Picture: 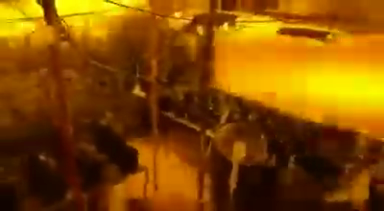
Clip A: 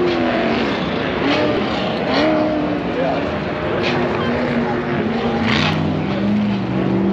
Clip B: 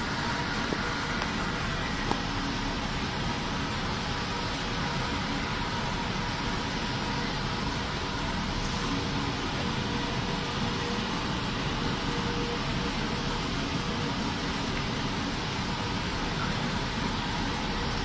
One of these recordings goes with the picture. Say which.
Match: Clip B